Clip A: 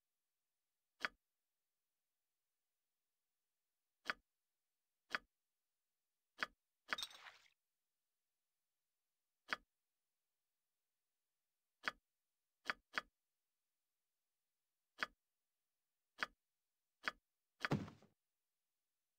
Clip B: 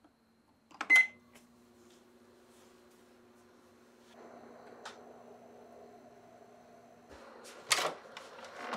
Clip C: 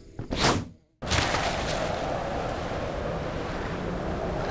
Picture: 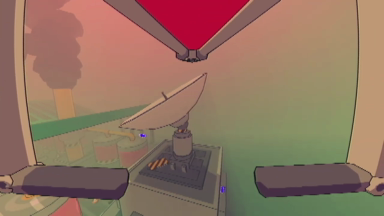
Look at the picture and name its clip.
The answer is C